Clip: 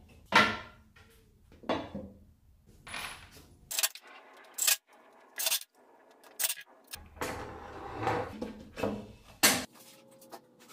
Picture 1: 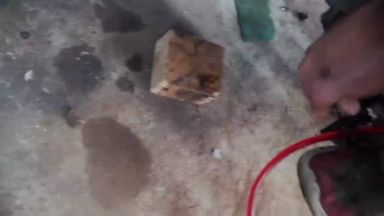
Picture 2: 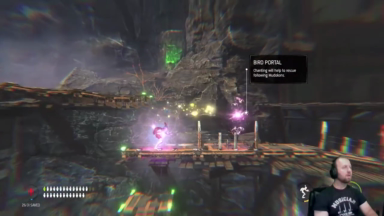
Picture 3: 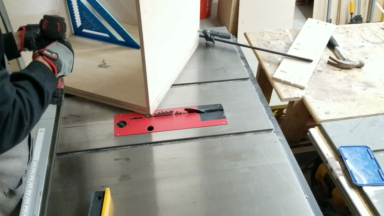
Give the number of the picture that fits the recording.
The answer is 3